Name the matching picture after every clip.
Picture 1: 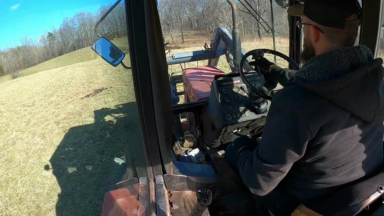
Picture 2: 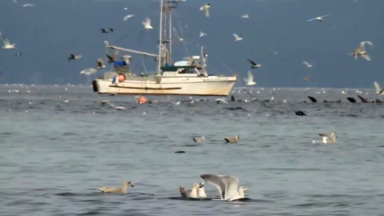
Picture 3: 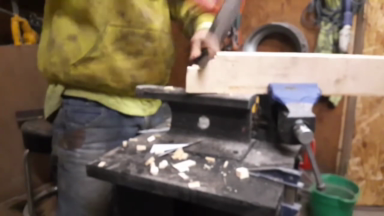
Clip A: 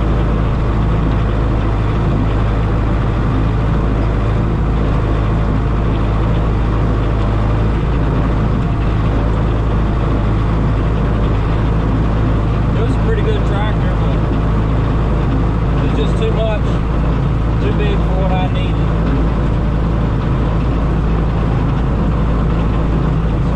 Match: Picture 1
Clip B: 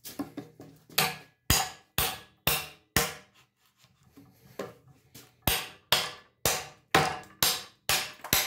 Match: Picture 3